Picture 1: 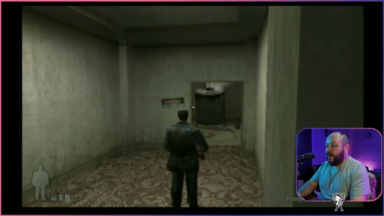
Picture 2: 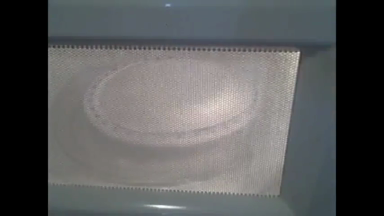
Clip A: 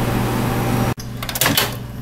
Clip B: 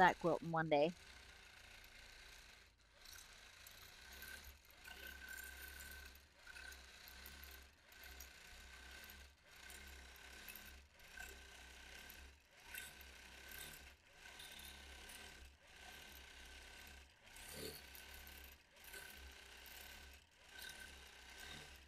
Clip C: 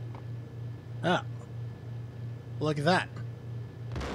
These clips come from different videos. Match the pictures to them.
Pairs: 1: C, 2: A